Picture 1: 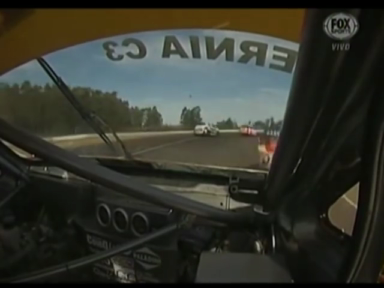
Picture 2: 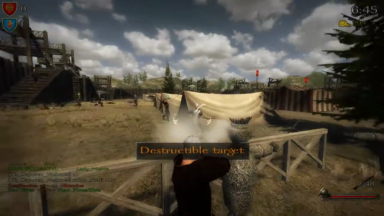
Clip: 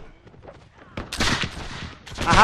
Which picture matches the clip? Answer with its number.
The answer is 2